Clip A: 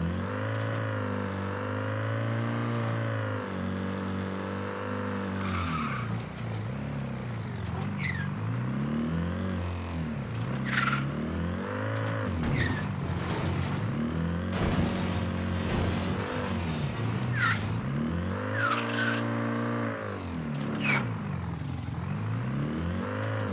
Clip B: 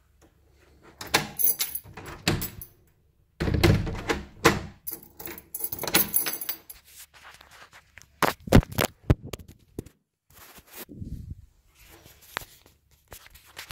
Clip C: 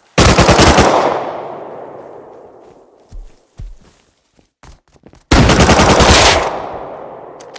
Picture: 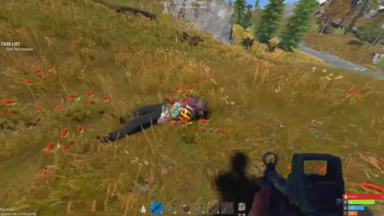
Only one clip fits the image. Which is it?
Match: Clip C